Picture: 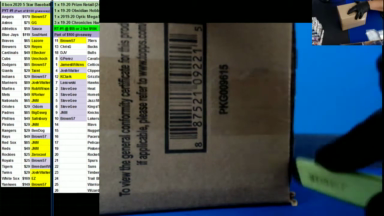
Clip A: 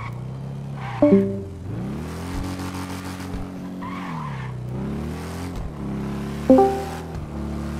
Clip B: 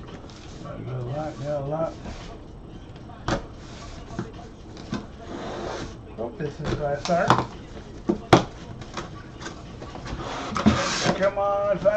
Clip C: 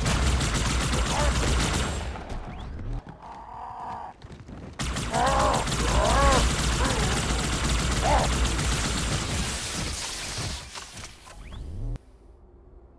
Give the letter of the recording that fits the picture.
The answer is B